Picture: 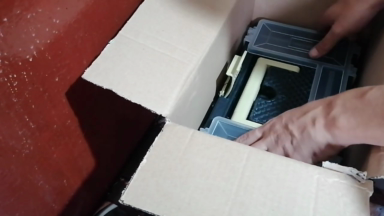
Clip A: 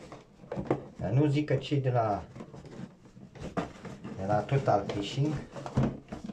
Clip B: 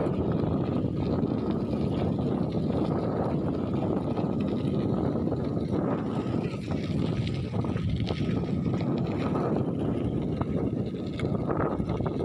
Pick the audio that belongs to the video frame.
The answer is A